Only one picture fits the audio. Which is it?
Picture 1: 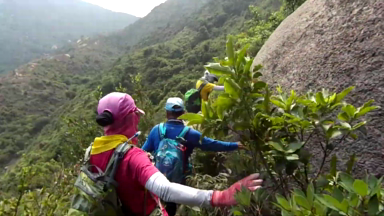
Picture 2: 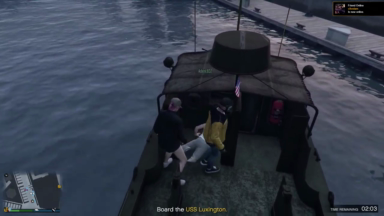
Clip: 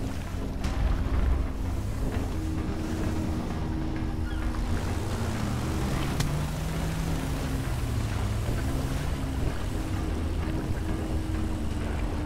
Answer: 2